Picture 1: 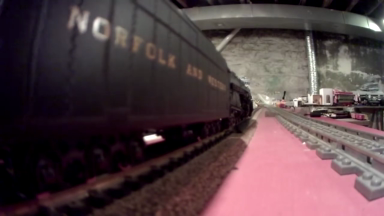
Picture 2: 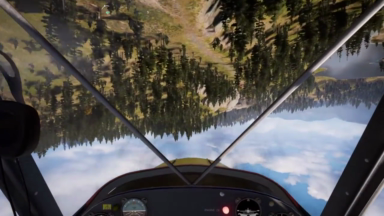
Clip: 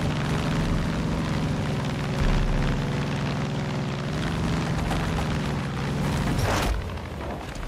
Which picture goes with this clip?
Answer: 2